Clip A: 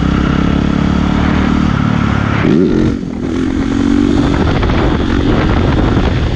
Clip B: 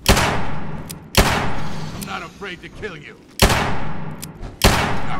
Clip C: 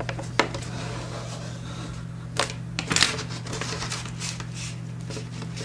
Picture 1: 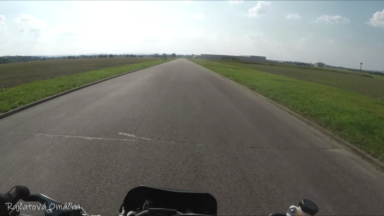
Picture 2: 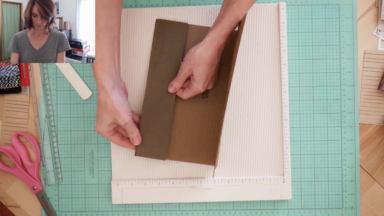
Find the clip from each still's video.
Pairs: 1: A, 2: C